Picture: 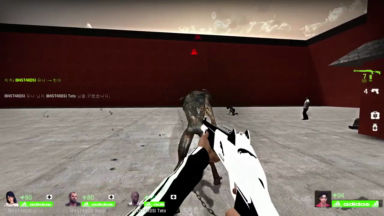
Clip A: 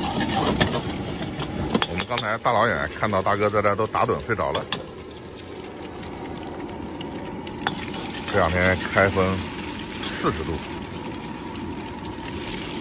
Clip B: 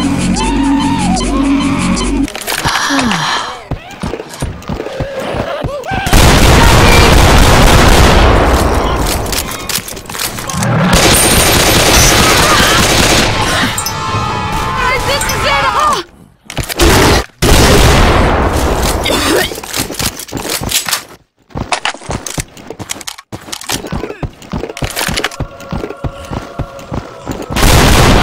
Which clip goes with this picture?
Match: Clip B